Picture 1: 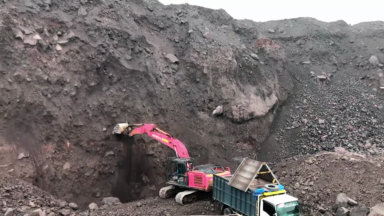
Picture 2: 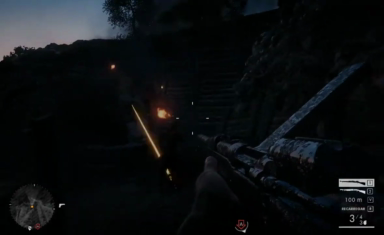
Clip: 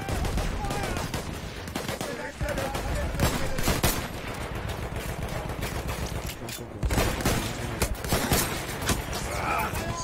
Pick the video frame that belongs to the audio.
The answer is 2